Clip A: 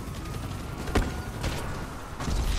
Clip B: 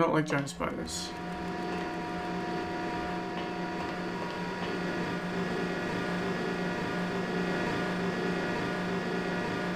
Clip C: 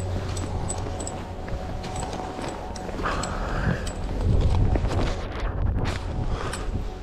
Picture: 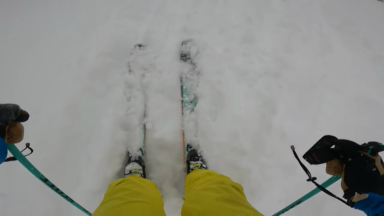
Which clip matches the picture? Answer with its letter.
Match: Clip C